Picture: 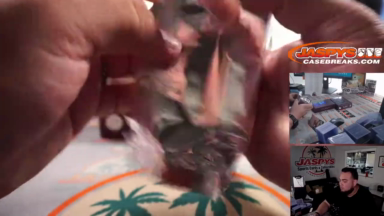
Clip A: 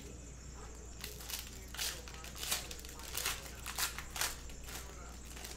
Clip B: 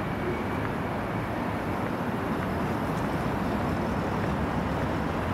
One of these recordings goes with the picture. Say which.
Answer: A